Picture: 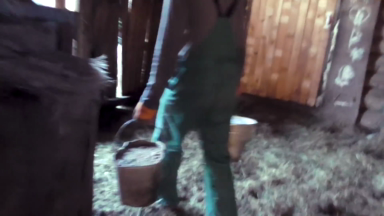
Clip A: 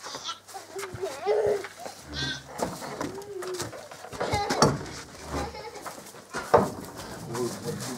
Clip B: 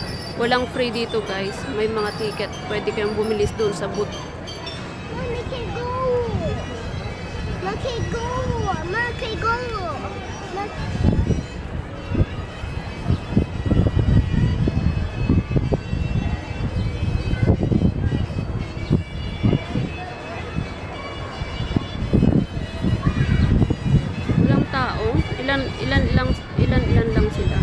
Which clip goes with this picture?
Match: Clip A